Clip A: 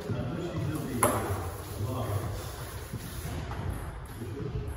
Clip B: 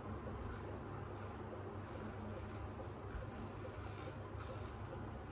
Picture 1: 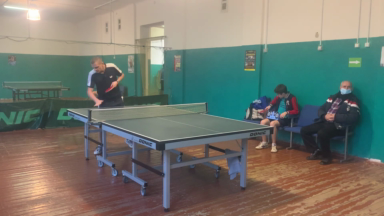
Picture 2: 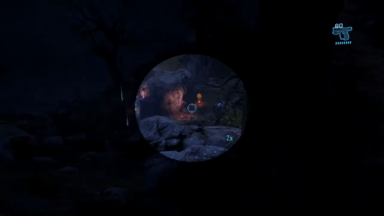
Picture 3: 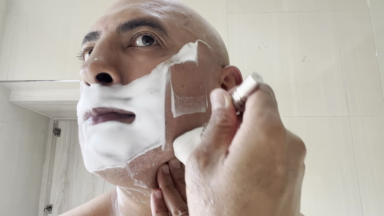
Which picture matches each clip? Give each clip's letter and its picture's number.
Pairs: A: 1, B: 3